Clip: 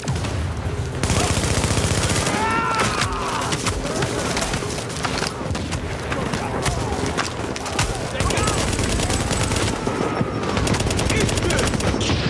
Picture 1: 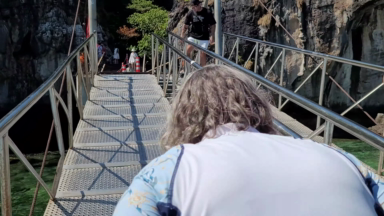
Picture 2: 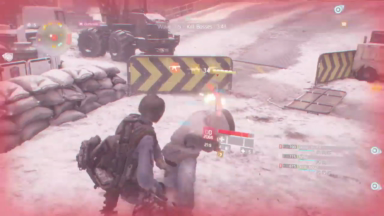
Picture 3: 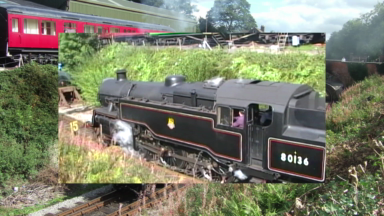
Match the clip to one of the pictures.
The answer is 2